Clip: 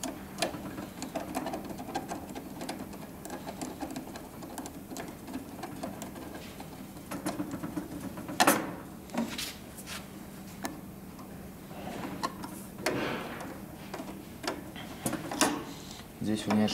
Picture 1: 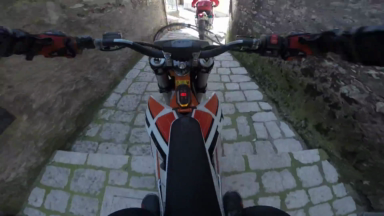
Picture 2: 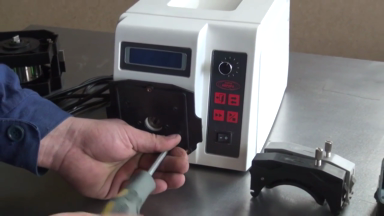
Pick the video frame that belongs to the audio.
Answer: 2